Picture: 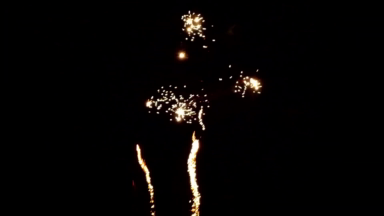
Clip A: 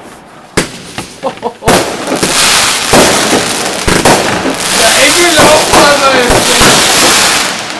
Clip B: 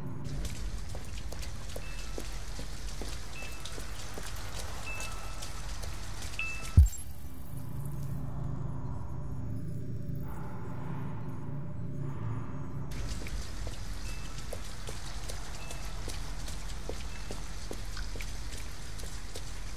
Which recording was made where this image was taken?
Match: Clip A